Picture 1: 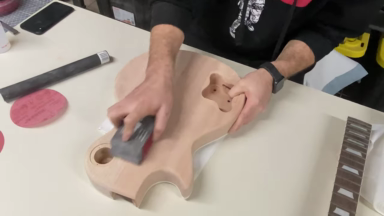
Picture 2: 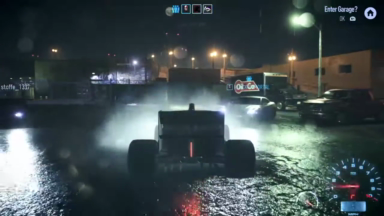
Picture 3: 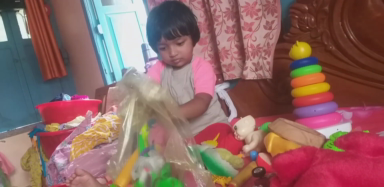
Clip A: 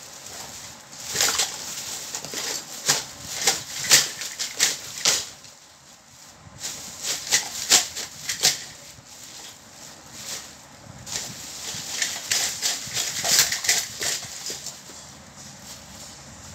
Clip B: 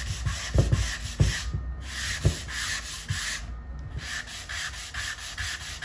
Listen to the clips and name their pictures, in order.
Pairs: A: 3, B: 1